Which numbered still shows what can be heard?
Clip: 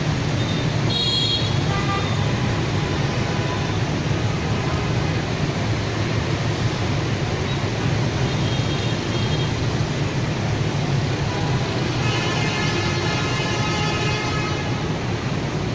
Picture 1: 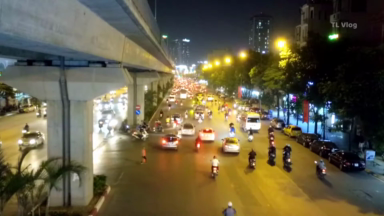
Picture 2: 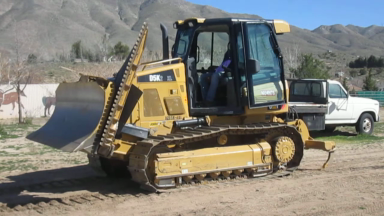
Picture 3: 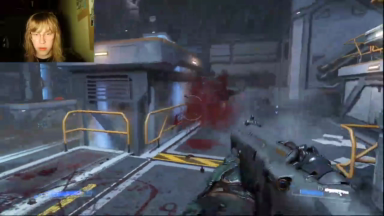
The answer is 1